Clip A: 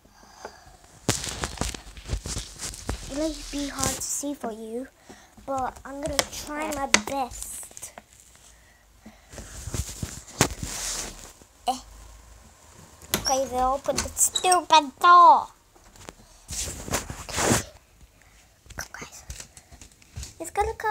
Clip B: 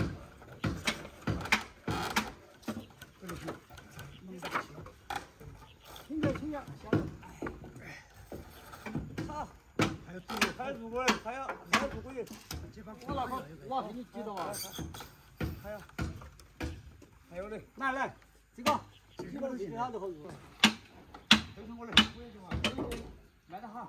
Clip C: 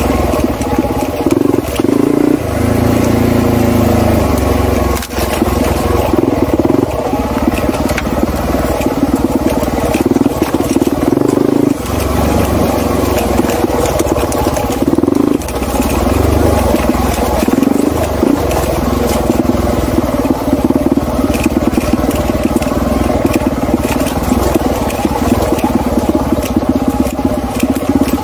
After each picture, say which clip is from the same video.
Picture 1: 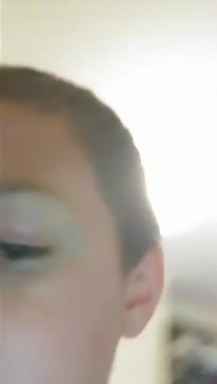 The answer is A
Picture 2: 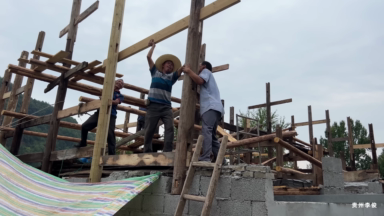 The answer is B